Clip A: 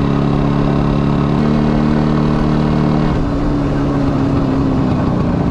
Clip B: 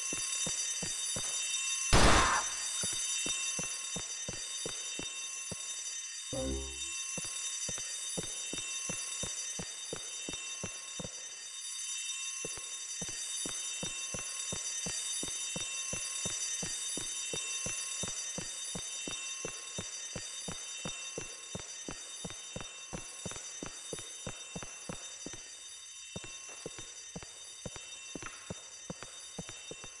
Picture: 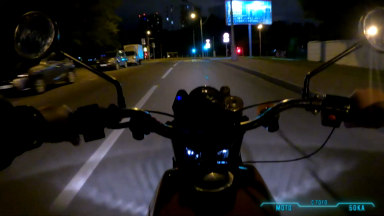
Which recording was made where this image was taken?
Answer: A